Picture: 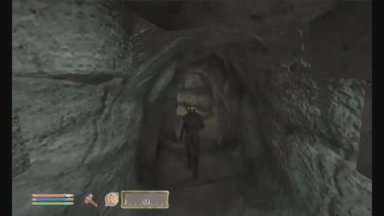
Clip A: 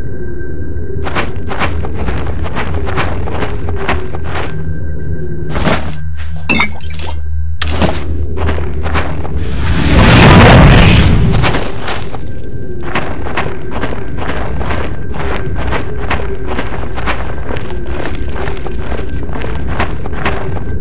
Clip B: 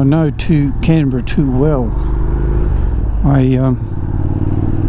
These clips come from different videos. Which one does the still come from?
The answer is A